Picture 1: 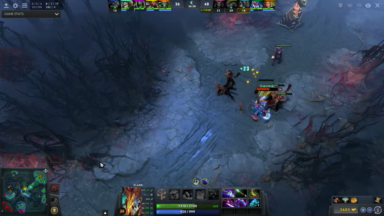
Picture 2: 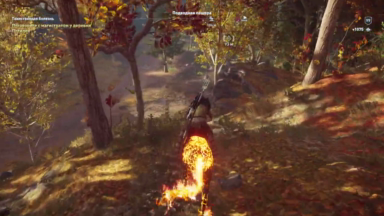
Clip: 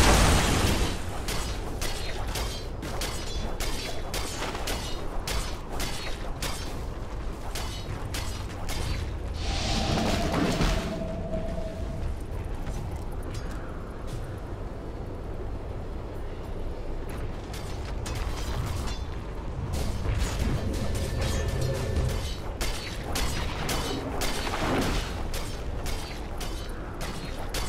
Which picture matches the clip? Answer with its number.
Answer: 1